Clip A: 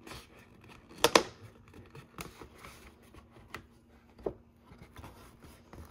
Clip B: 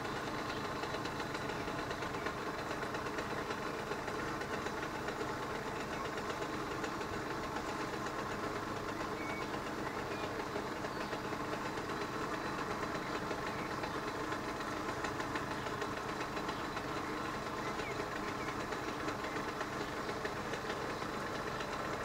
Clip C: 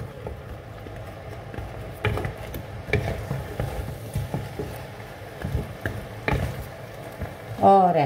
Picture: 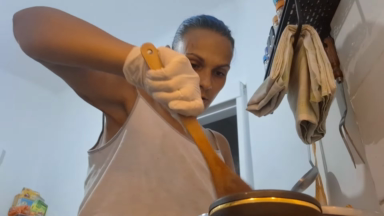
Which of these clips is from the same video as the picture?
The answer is C